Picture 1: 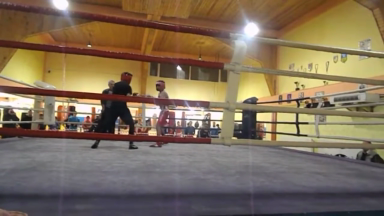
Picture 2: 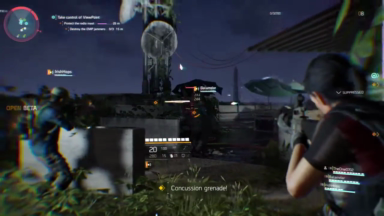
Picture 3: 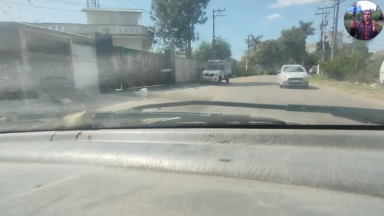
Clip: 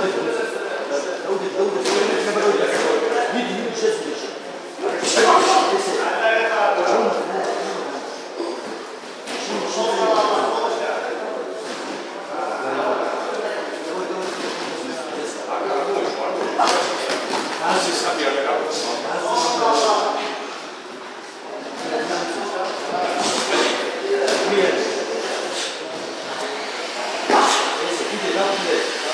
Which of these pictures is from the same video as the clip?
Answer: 1